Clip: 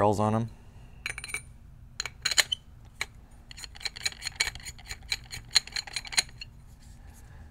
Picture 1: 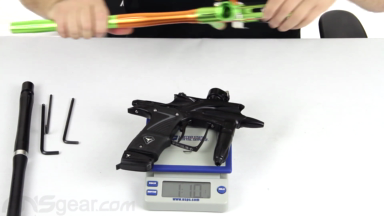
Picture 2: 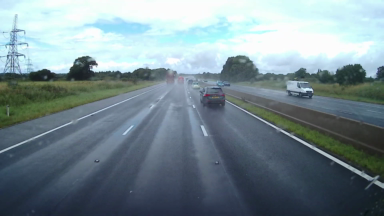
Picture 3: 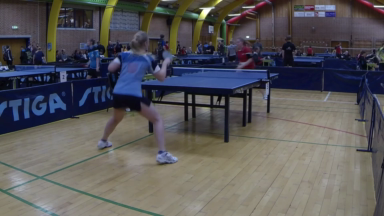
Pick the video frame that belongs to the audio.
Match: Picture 1